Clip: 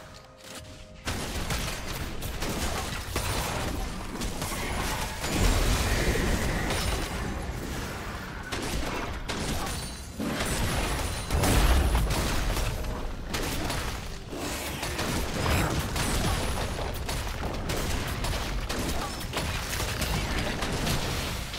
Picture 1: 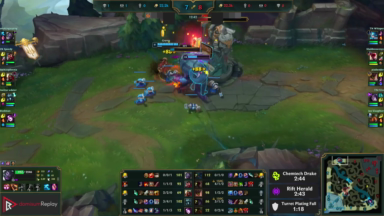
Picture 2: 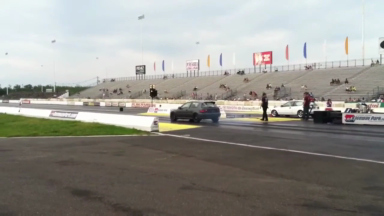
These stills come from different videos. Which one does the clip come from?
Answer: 1